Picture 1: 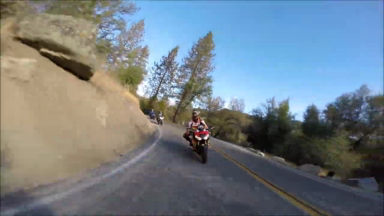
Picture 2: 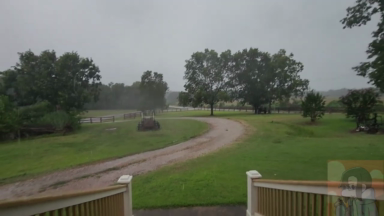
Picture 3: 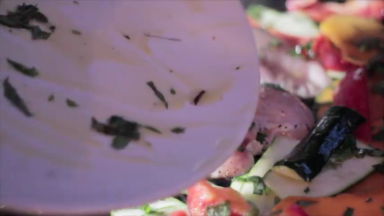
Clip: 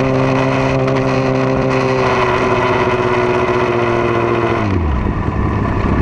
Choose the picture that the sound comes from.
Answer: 1